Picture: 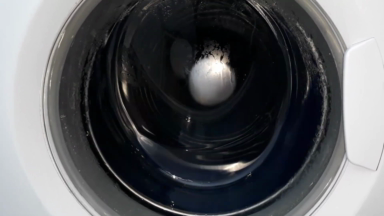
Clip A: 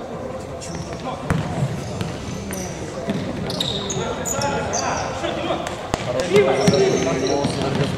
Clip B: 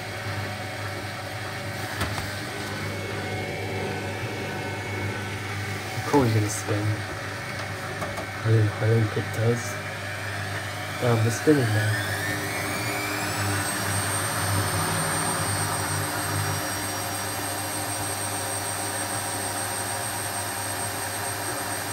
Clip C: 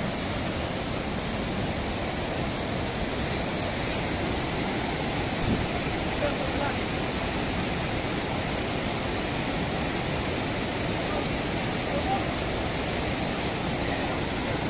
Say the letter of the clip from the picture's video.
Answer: B